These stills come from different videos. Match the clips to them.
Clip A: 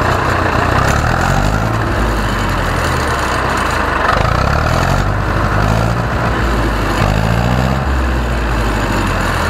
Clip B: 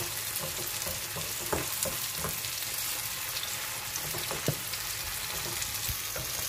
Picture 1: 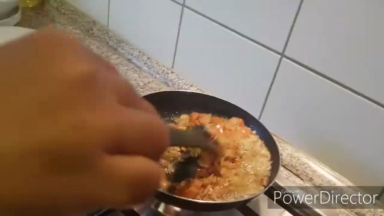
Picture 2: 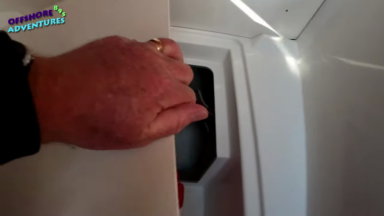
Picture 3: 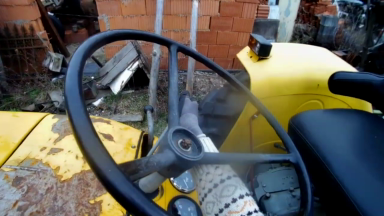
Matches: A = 3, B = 1